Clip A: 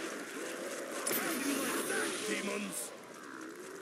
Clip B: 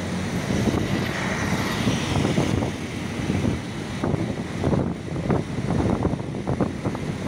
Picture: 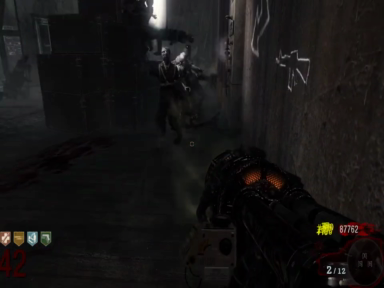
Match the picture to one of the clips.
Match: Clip A